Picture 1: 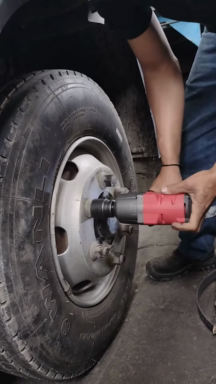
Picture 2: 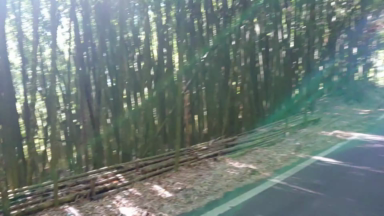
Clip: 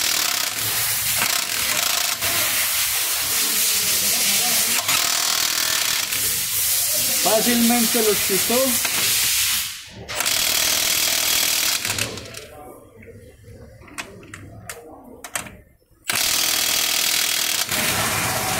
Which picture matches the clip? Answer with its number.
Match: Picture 1